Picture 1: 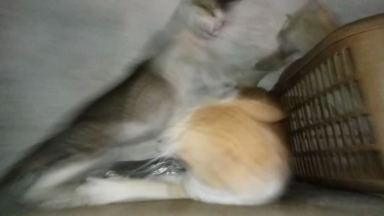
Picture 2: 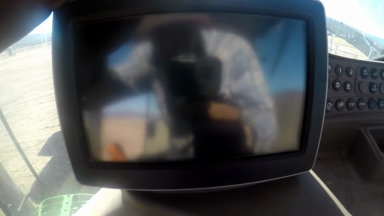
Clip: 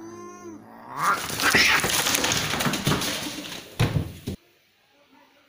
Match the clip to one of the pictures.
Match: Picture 1